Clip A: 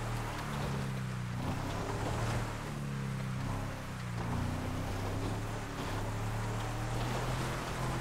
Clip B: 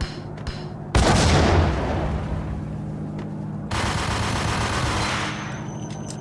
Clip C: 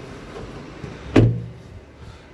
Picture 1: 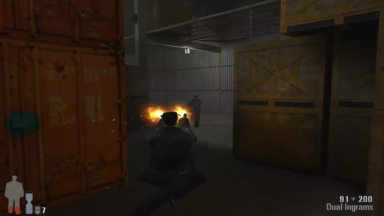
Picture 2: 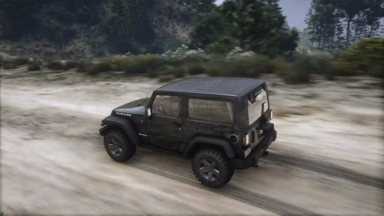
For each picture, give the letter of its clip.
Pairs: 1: B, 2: A